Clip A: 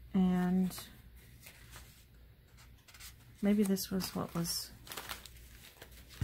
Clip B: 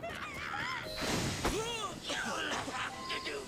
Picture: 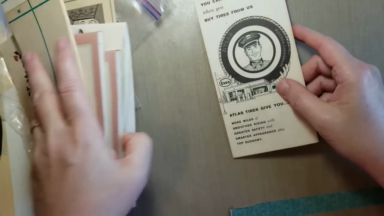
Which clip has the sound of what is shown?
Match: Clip A